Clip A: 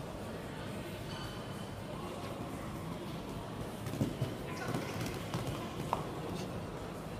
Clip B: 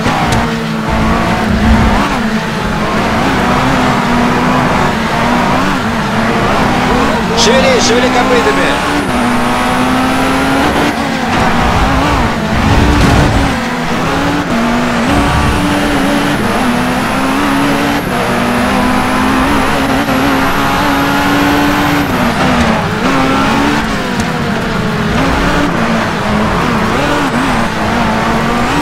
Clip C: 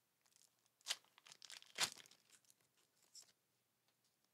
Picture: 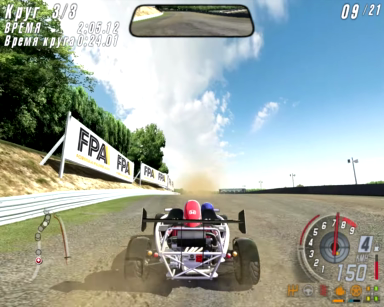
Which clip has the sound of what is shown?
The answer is B